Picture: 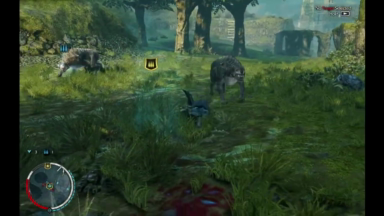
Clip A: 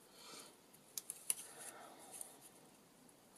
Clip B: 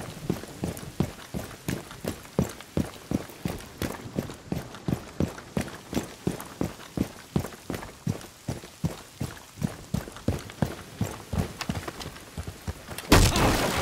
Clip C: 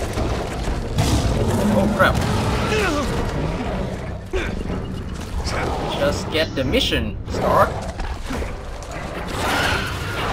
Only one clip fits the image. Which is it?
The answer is C